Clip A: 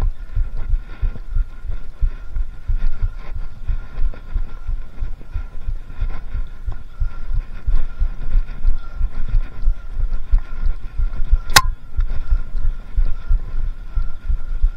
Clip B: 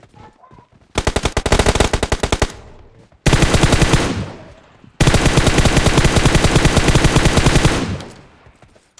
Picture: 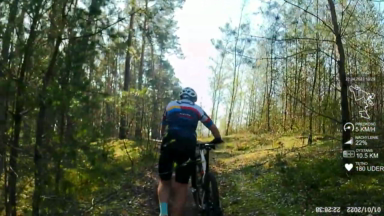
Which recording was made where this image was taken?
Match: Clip A